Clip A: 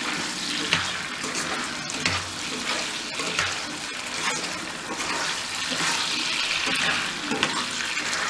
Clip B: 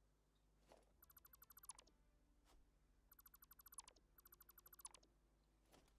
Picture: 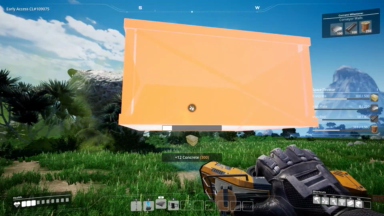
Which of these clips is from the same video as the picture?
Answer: B